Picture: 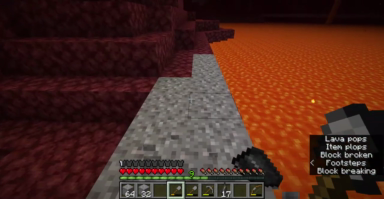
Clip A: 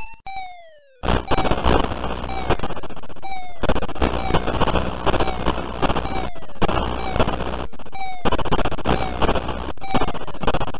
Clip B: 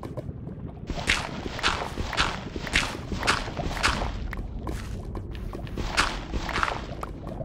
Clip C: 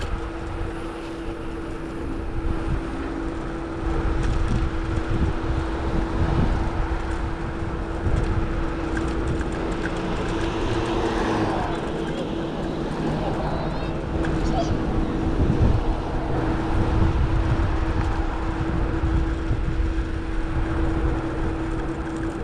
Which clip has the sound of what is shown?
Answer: B